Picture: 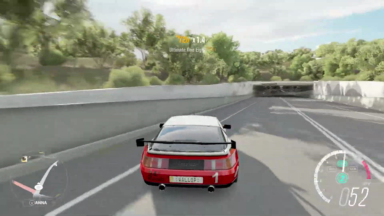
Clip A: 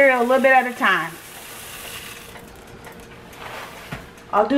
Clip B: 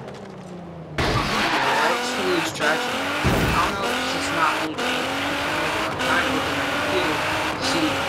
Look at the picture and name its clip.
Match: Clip B